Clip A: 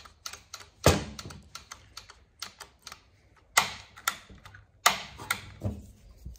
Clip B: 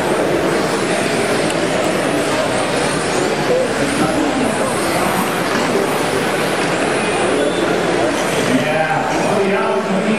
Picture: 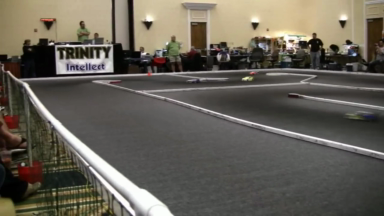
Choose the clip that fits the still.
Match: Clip B